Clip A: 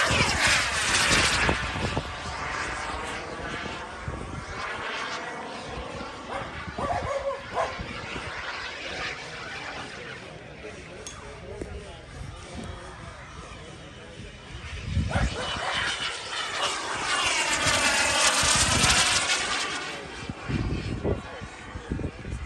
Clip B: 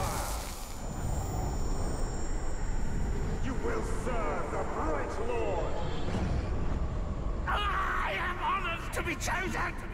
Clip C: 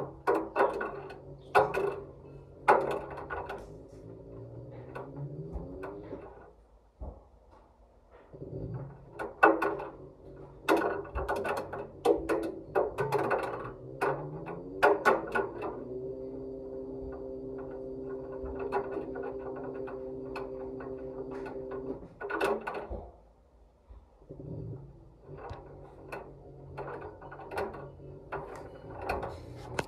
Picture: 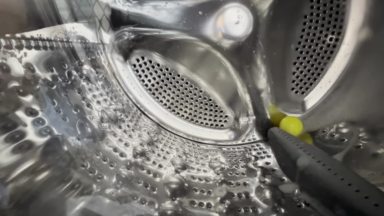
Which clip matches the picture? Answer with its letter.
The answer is C